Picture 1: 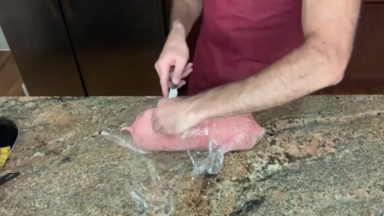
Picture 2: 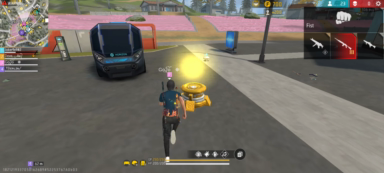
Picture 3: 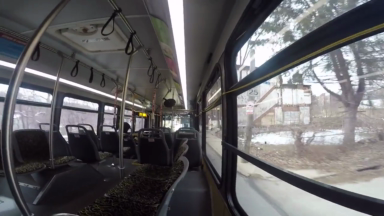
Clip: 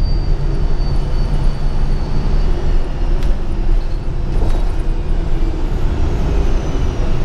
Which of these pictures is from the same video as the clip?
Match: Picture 3